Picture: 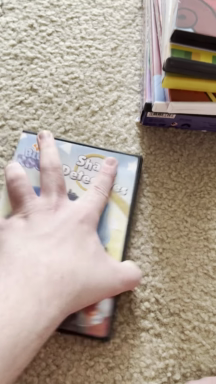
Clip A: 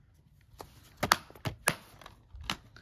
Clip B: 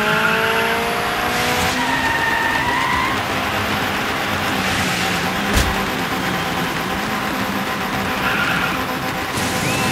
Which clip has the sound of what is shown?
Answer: A